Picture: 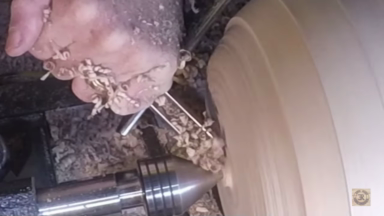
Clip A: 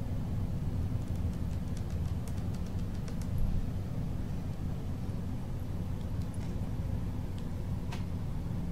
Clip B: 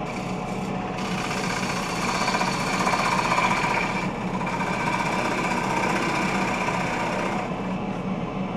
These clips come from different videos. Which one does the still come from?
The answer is B